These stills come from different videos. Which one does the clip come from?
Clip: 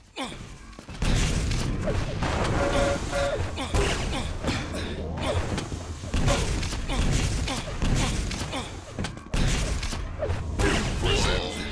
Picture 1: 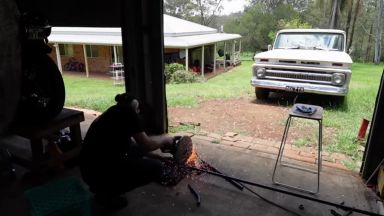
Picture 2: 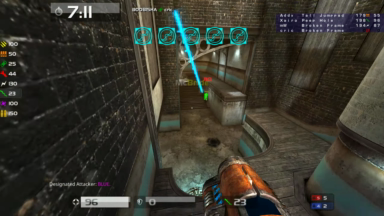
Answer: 2